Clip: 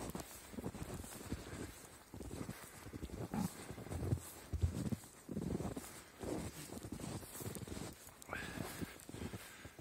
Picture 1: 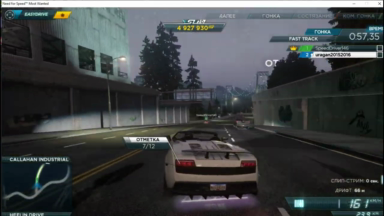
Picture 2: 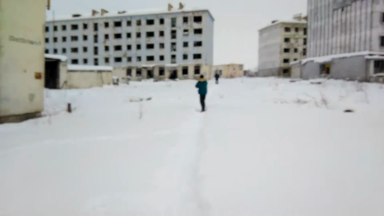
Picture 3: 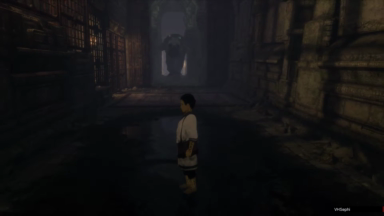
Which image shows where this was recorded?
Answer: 2